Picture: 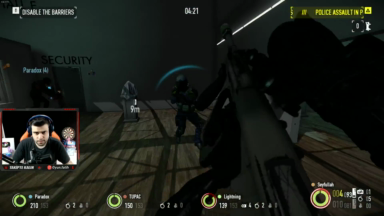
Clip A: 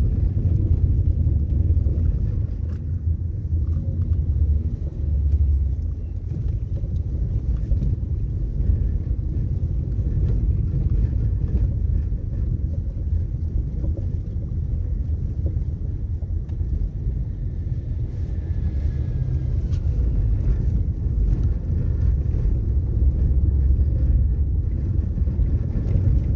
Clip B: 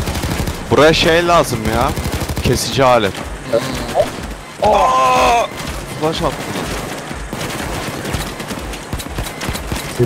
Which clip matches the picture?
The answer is B